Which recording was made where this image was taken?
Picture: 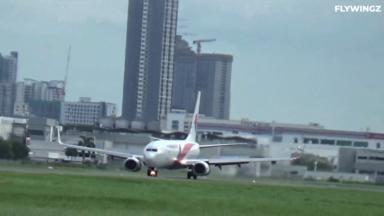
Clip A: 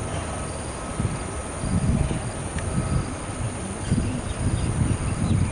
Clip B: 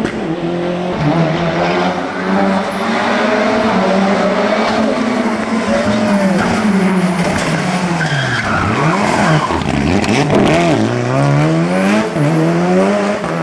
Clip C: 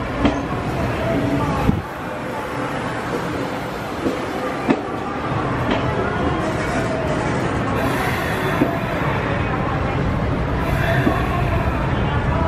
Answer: A